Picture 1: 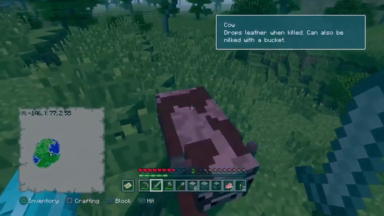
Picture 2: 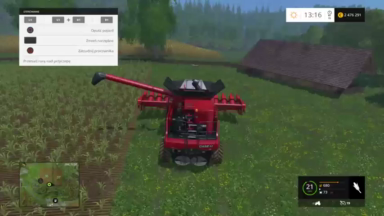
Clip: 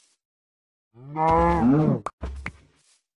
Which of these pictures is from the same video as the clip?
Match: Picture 1